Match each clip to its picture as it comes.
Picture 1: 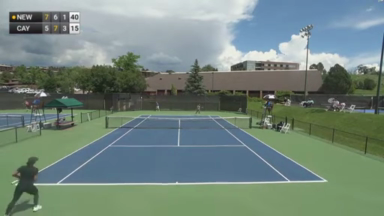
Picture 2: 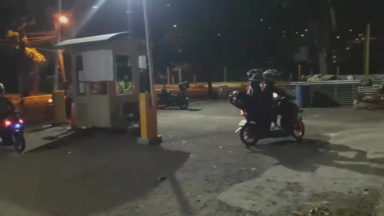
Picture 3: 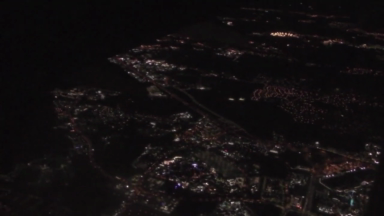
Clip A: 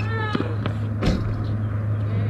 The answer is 1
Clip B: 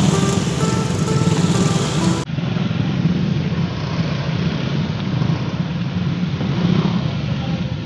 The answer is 2